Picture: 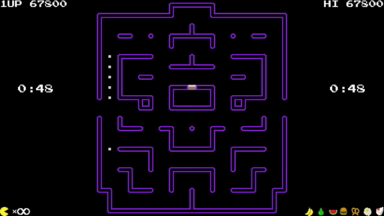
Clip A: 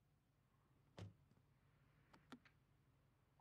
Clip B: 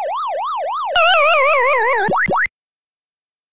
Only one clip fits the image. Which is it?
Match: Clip B